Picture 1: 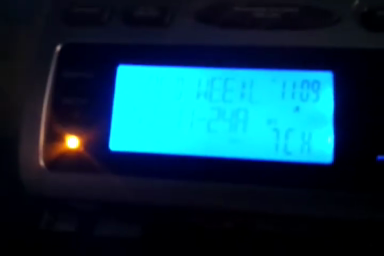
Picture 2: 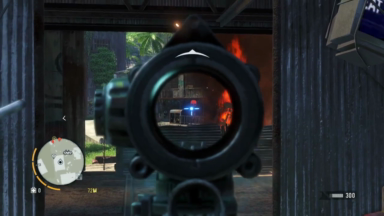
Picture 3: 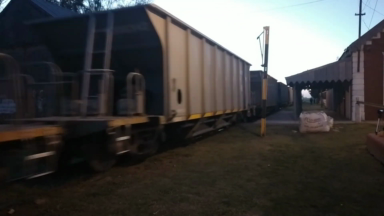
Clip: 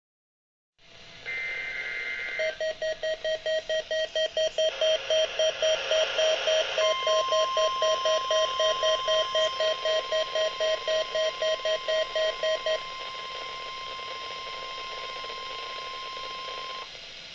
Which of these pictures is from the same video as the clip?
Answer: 1